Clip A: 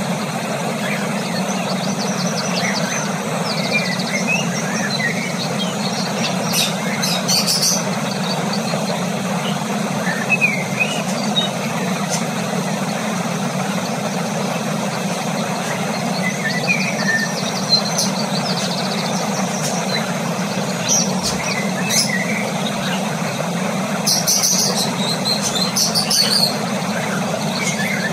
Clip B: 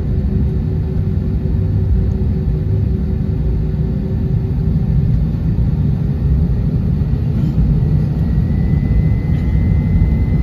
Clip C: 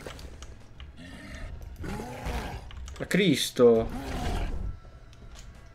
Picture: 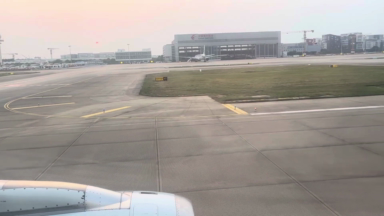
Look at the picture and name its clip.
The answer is B